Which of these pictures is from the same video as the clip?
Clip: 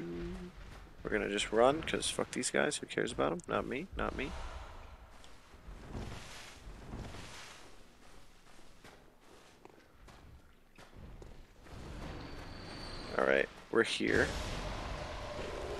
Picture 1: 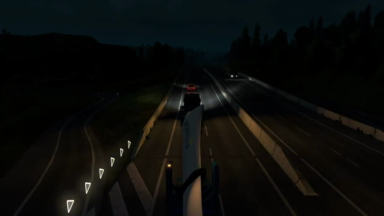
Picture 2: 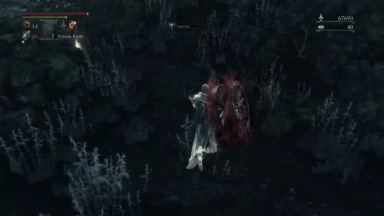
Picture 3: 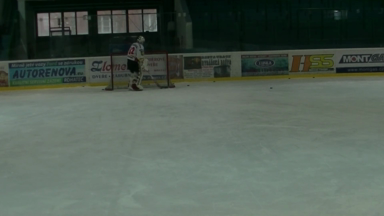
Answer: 2